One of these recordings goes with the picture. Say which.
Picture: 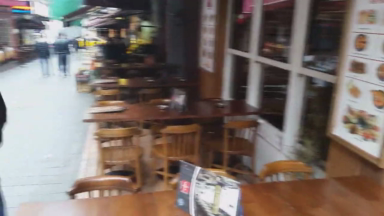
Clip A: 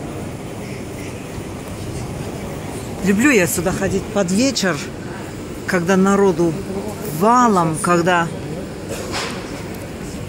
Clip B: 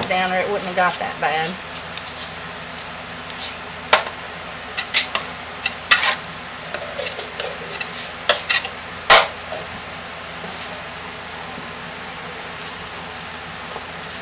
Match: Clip A